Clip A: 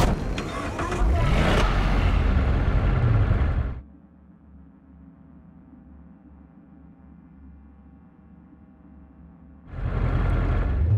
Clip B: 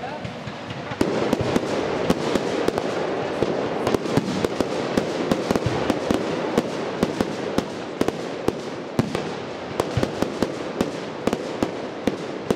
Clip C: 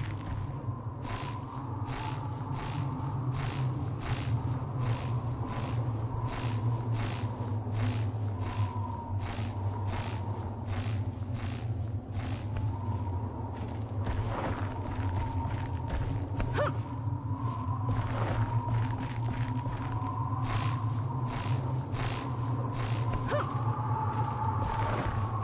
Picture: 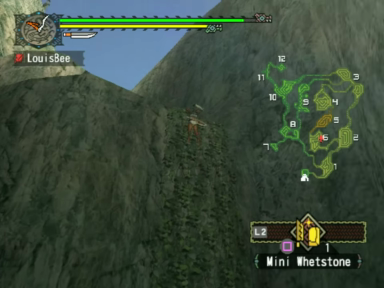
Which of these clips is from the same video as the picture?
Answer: C